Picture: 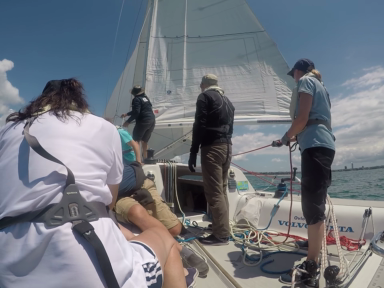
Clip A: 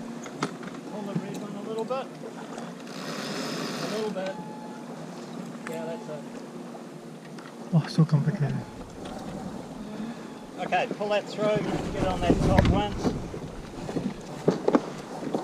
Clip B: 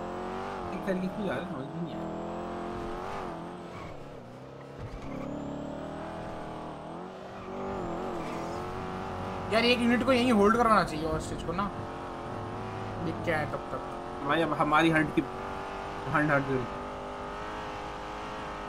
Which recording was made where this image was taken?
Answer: A